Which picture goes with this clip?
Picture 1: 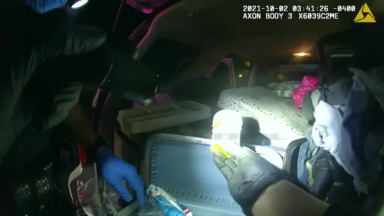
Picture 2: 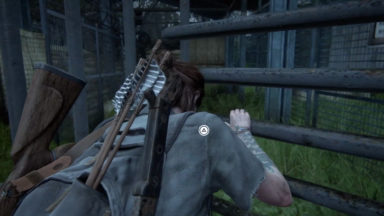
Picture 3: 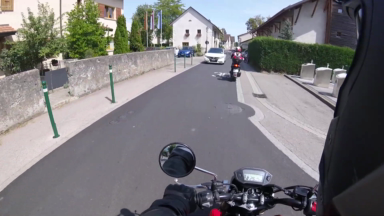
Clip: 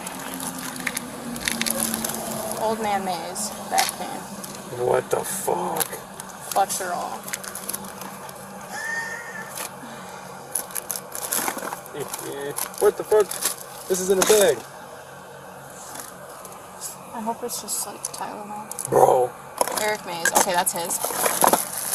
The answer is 1